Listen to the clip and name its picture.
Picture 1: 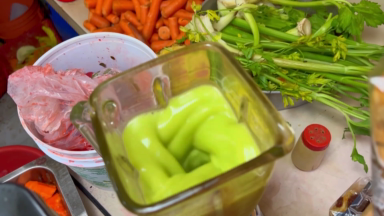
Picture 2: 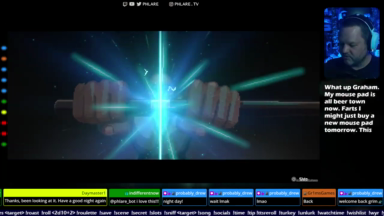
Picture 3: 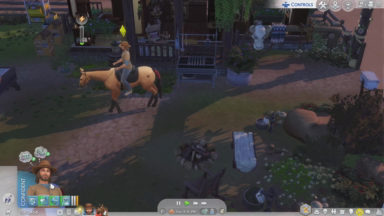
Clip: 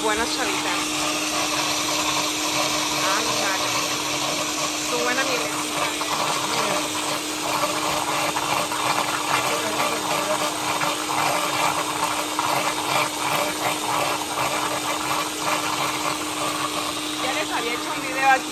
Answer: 1